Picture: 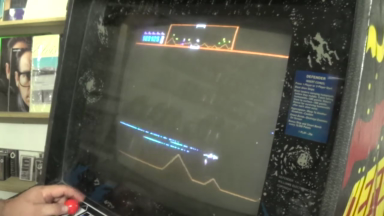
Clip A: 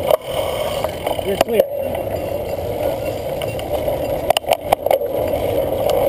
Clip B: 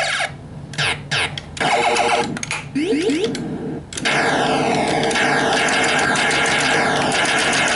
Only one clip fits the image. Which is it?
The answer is B